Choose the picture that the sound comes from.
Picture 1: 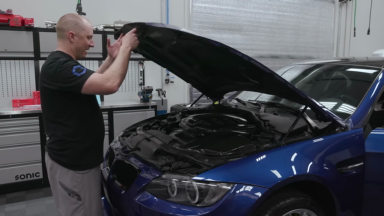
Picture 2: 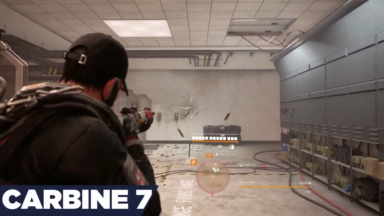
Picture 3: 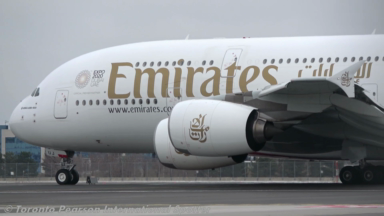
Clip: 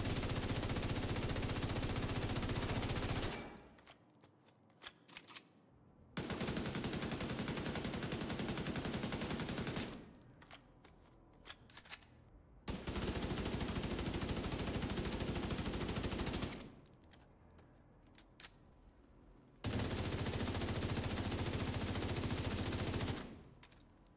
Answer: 2